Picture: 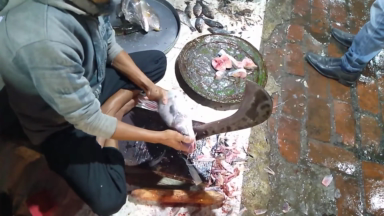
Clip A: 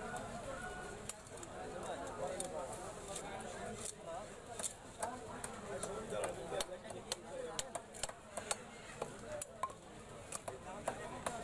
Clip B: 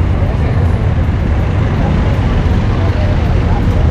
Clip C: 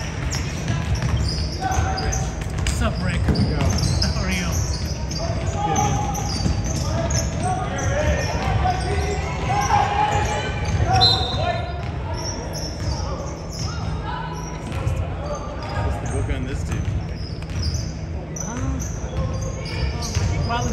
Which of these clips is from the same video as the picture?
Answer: A